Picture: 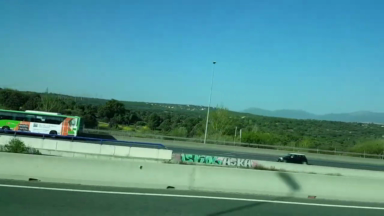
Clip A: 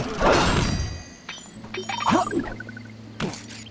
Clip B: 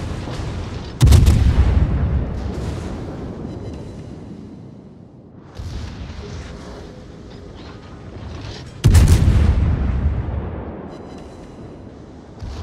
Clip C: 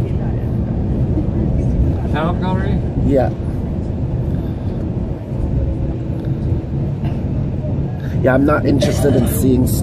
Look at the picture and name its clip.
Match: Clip C